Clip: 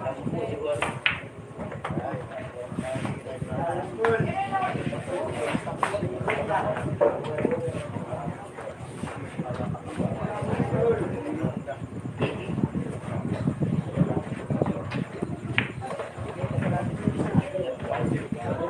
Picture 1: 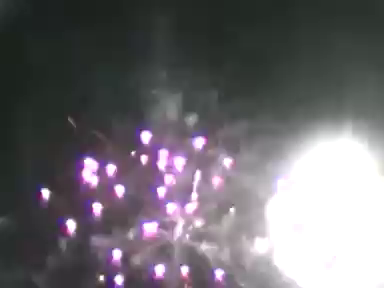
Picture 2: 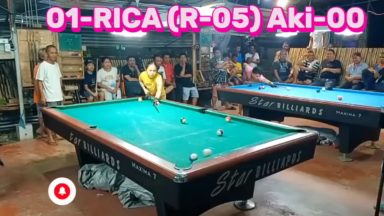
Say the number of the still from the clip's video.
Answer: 2